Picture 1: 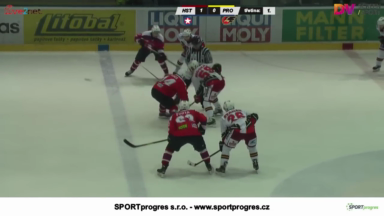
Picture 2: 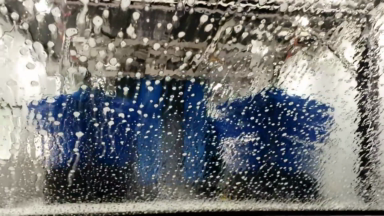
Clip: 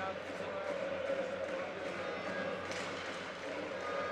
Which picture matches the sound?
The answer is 1